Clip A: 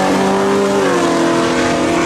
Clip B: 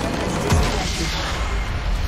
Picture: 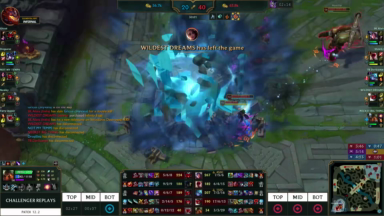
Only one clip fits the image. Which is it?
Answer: B